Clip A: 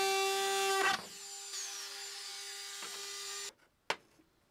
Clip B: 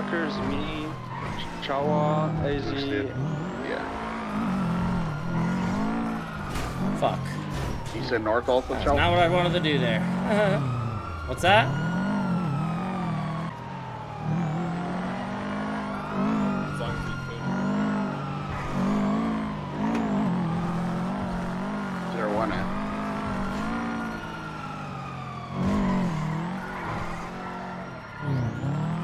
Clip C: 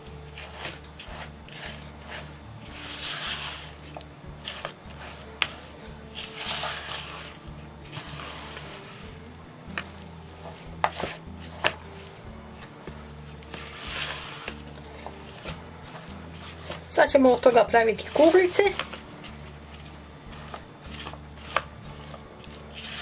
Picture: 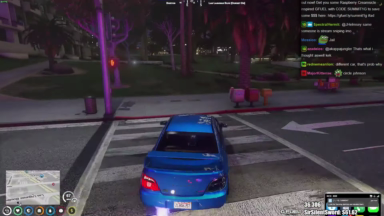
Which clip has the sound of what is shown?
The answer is B